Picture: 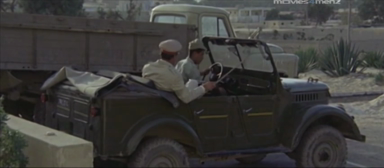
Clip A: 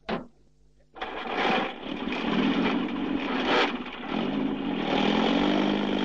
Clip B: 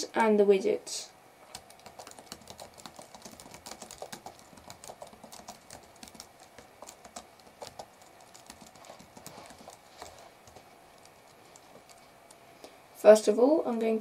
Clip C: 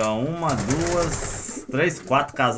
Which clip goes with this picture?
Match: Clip A